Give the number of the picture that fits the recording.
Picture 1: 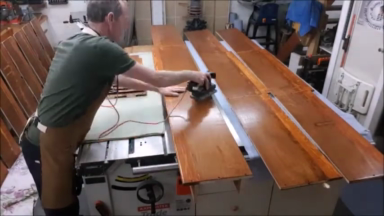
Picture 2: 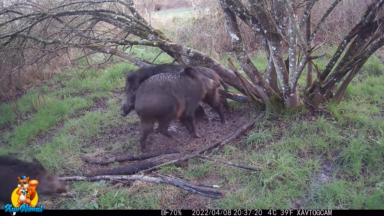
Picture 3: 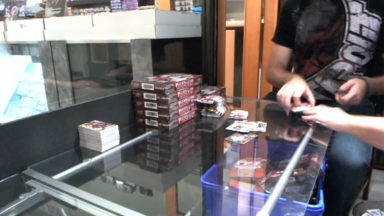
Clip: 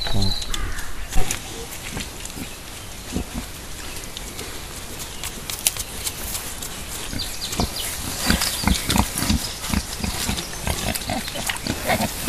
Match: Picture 2